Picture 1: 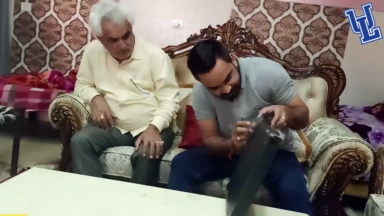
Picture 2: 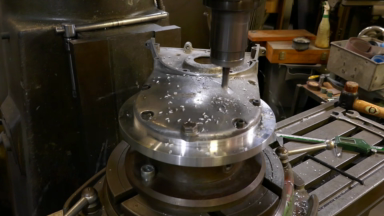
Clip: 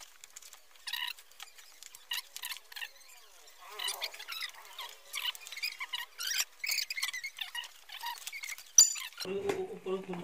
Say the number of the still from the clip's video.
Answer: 1